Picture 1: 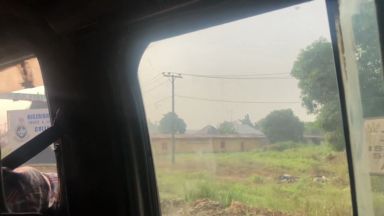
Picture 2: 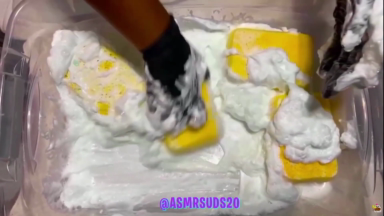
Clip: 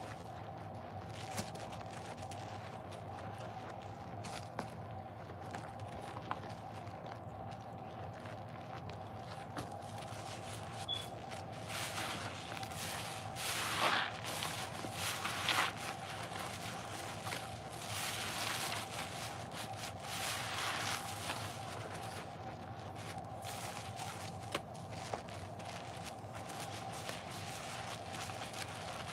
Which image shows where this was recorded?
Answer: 2